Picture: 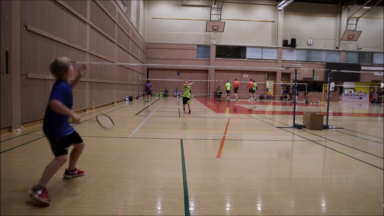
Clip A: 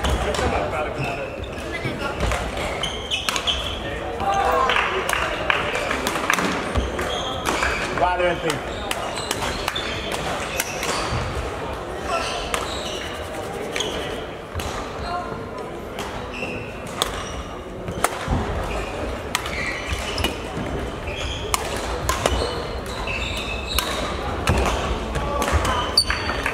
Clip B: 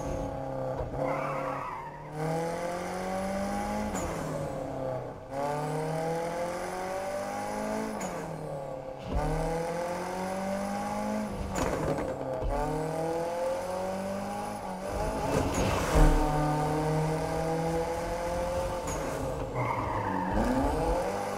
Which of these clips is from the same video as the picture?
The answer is A